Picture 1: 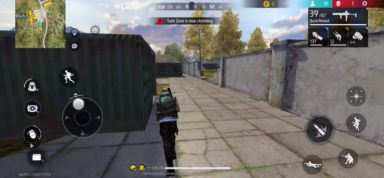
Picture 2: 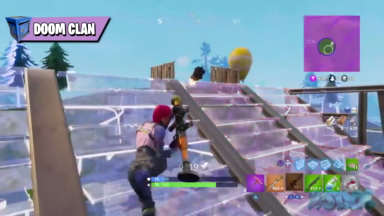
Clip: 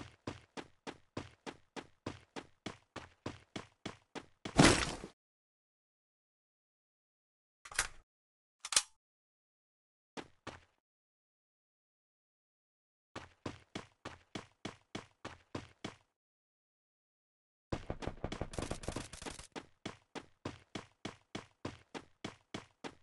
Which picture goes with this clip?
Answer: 1